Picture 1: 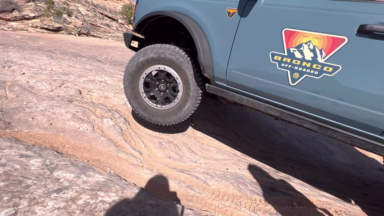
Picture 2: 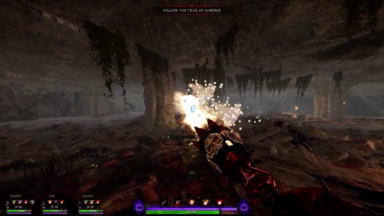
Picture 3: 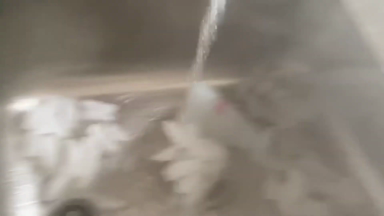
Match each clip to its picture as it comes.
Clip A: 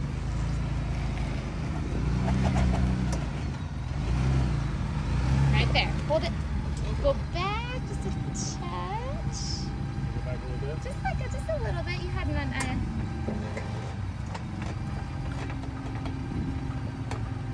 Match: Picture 1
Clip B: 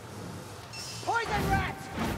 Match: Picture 2